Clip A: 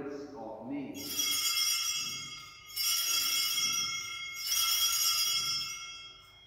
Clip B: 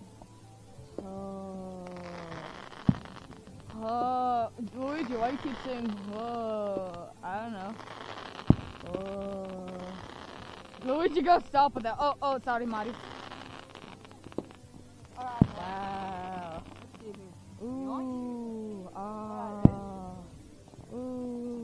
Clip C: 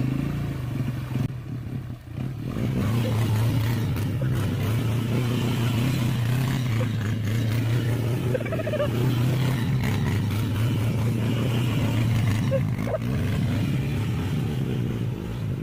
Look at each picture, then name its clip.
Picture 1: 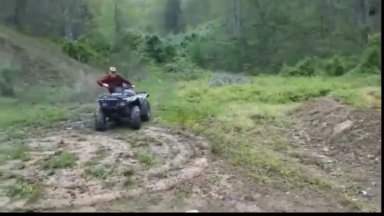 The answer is C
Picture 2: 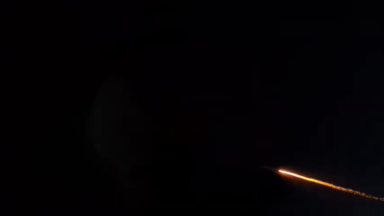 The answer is B